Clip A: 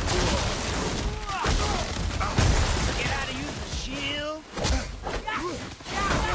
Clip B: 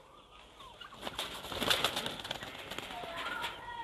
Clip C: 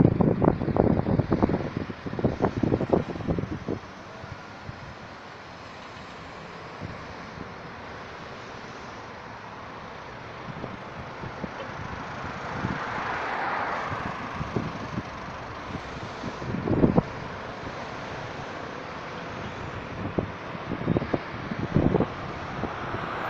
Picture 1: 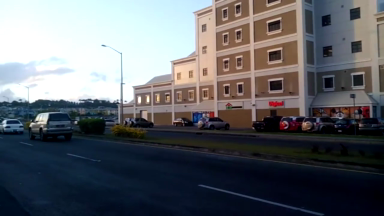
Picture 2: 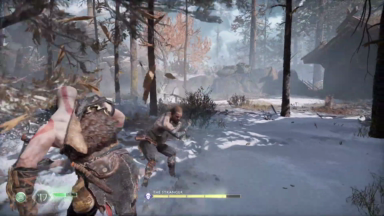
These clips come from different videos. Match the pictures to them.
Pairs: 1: C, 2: A